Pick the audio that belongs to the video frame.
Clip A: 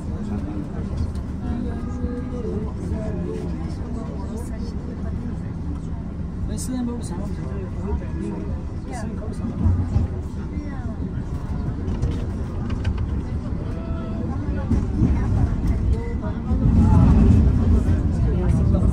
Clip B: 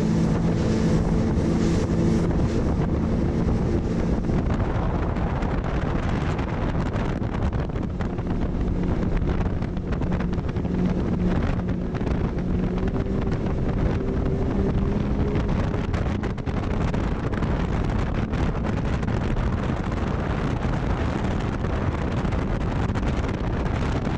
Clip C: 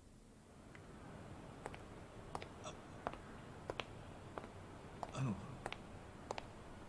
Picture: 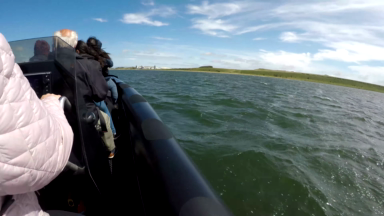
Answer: B